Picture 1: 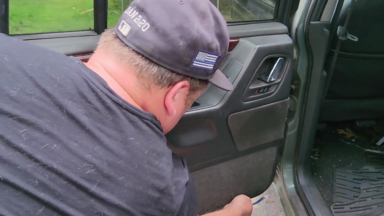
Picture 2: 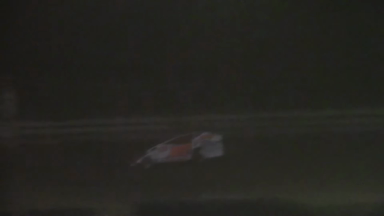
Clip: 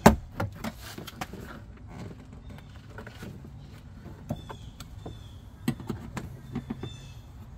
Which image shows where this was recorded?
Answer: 1